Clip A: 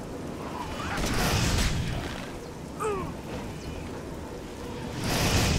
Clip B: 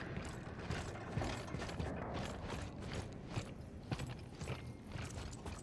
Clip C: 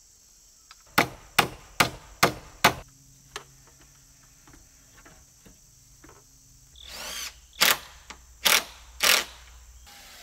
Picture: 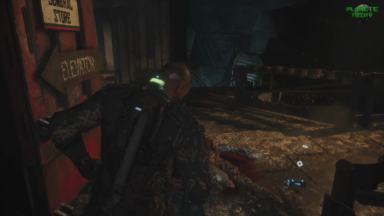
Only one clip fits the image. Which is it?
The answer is B